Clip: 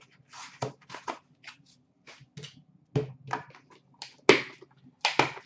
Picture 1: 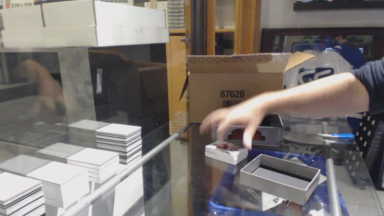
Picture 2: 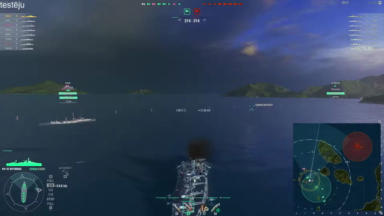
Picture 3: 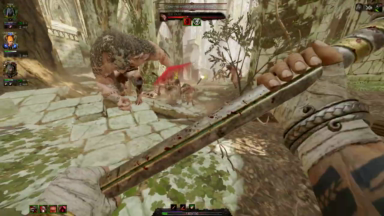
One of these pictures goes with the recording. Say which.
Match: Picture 1